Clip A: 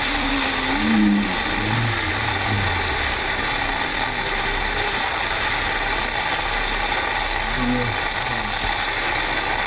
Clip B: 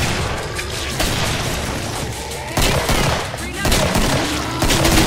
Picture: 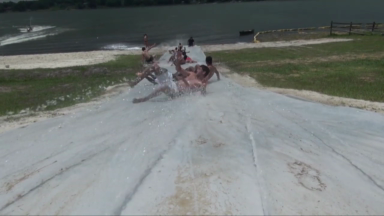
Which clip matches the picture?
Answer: A